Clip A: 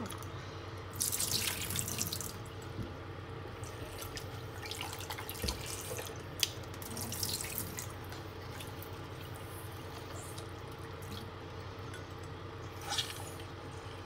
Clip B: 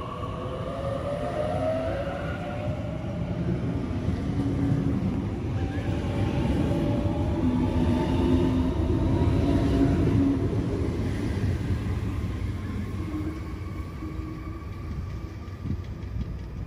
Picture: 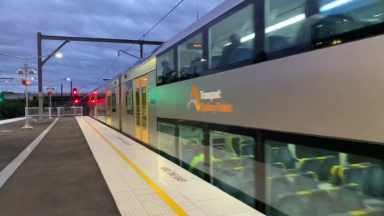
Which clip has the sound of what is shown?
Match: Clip B